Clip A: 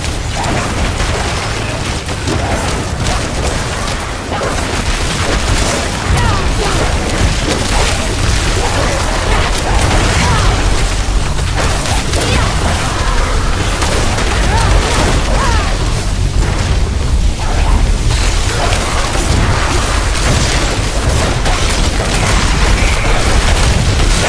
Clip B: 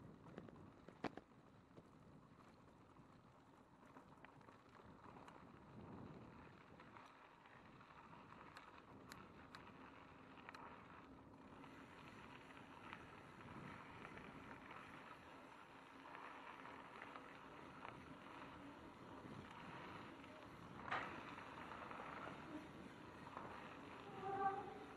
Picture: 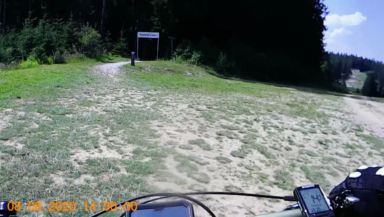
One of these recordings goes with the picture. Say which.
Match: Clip B